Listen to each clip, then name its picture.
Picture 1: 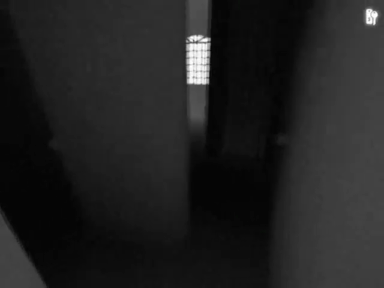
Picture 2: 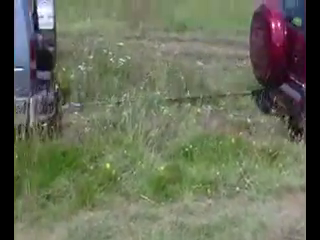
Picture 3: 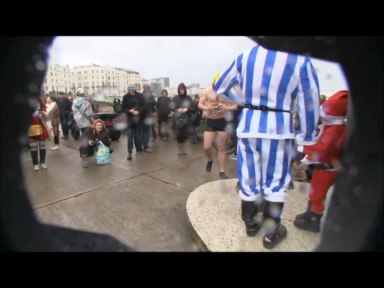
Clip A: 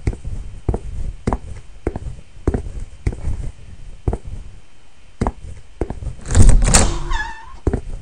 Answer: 1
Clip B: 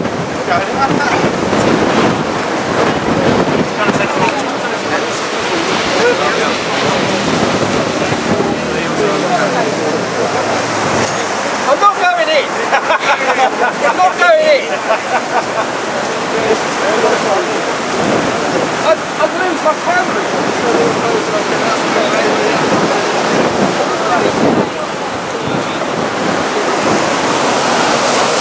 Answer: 3